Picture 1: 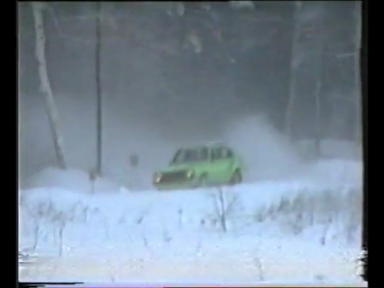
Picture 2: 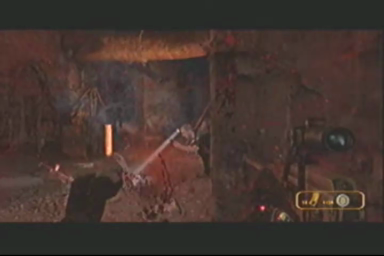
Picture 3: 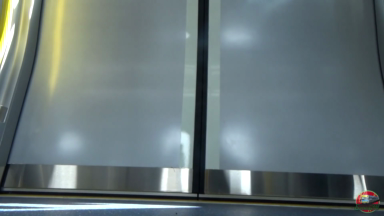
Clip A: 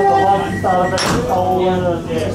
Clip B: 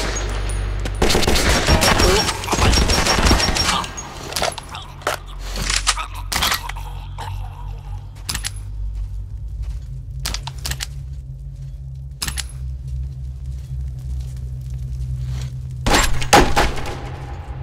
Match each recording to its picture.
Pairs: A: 3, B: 2